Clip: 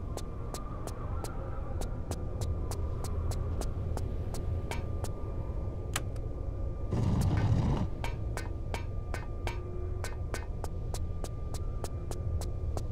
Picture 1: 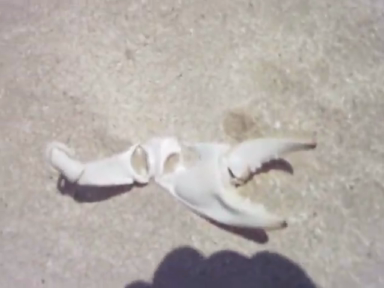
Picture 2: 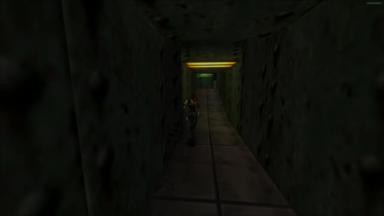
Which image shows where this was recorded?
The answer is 2